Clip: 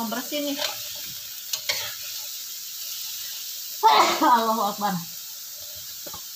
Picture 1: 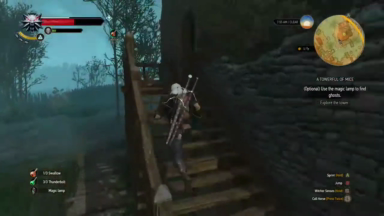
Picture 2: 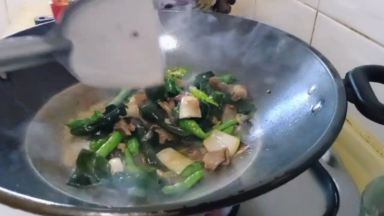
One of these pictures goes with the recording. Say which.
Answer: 2